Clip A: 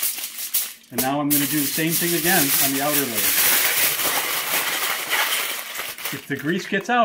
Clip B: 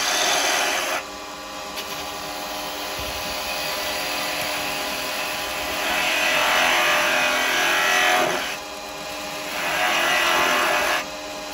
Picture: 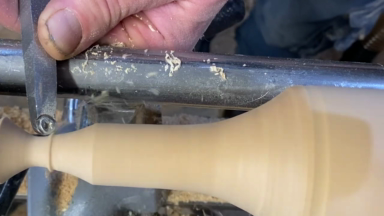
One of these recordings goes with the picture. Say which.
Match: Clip B